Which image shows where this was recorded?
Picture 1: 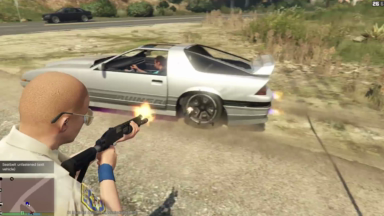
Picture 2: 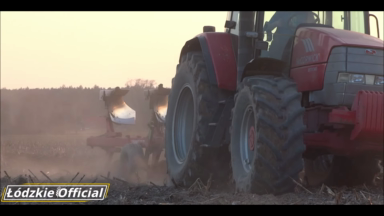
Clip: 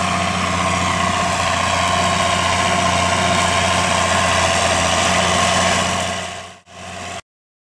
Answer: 2